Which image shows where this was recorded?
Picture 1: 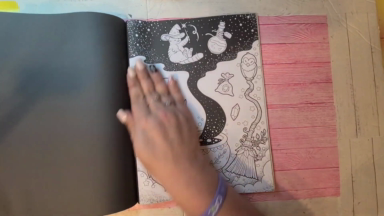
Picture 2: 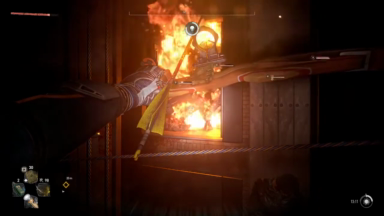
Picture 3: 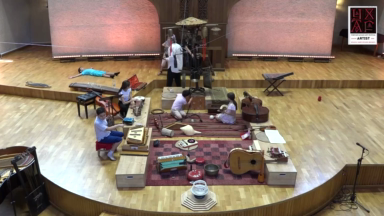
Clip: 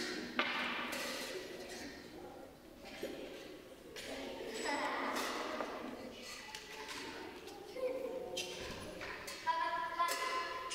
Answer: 3